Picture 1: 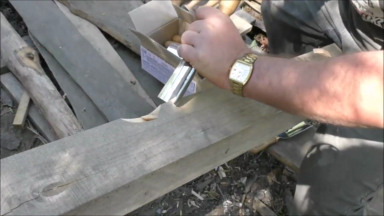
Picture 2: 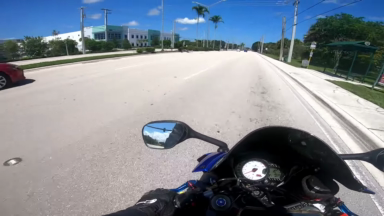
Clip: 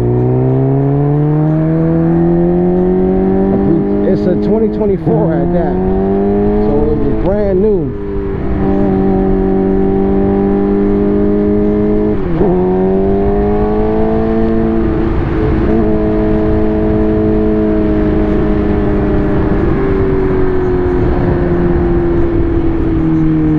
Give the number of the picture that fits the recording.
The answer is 2